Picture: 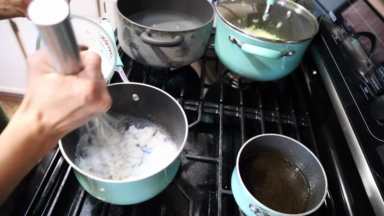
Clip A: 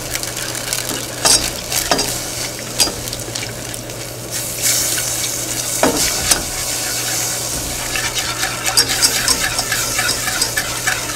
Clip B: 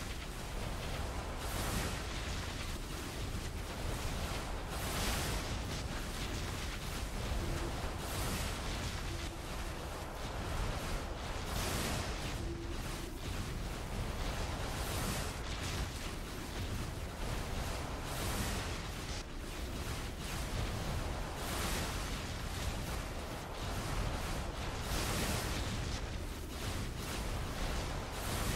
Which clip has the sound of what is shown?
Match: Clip A